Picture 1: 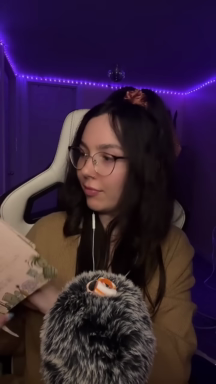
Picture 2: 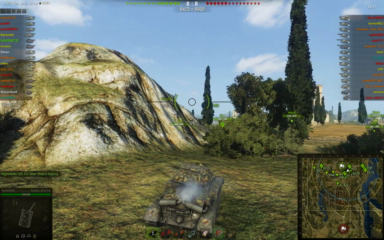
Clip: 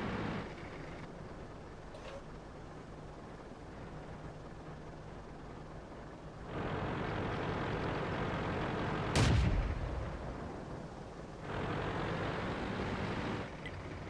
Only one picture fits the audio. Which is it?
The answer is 2